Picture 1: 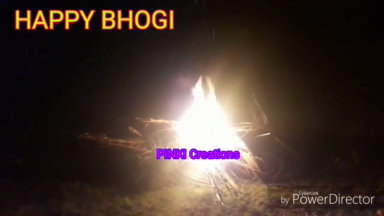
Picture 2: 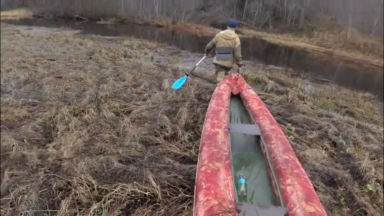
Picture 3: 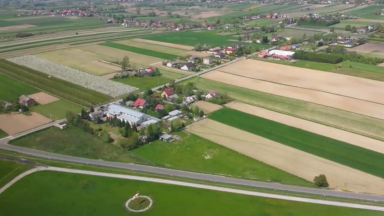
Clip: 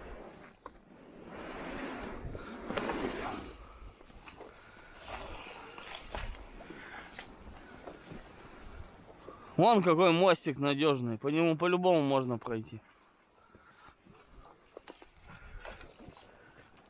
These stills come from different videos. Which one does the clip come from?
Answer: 2